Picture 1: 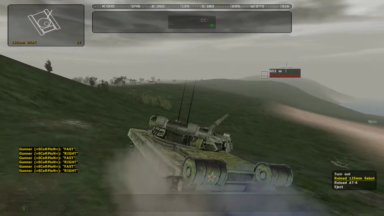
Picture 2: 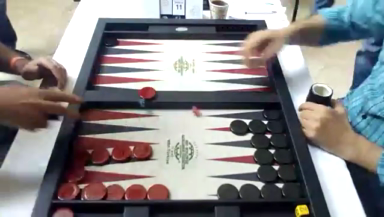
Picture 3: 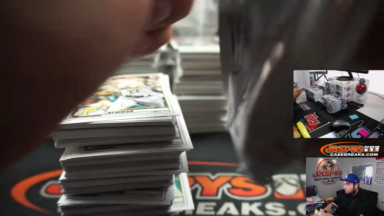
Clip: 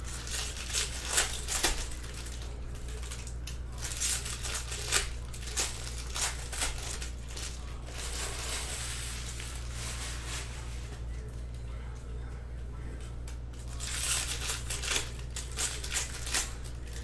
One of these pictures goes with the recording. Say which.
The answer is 3